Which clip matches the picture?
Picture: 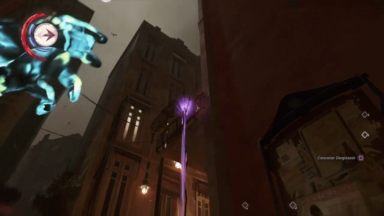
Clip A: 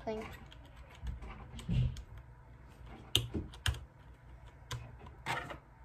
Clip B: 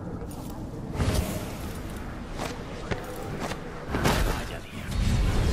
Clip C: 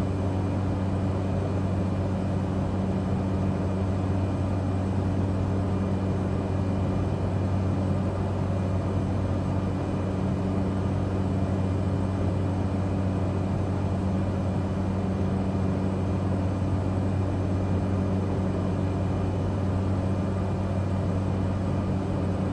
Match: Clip B